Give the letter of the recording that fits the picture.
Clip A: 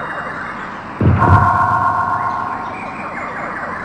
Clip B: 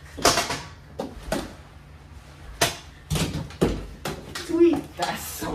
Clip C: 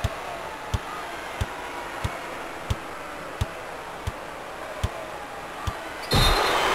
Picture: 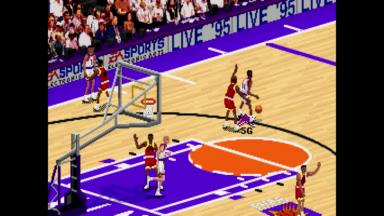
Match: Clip C